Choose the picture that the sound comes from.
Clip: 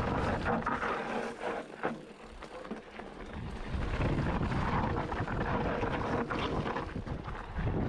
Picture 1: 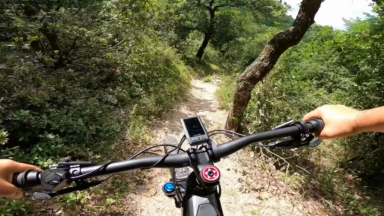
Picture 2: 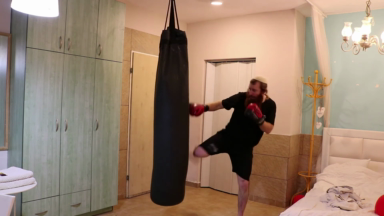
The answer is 1